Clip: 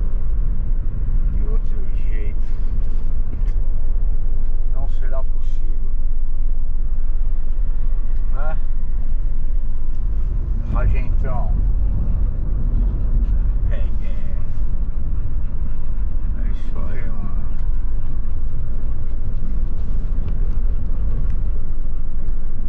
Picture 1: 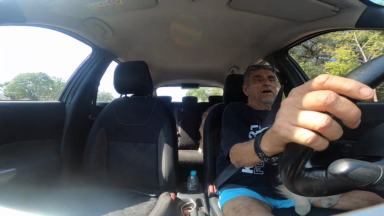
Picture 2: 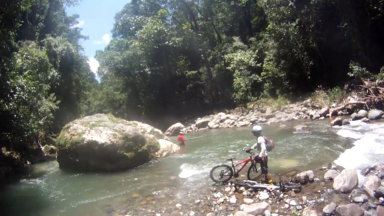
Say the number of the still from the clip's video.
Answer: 1